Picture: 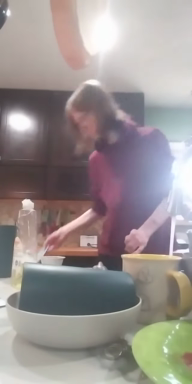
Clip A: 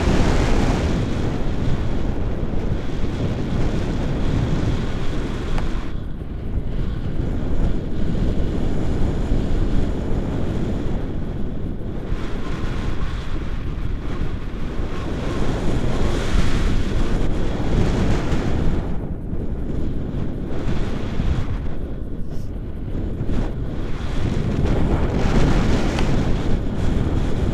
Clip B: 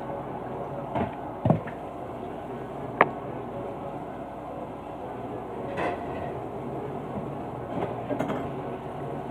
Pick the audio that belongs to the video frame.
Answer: B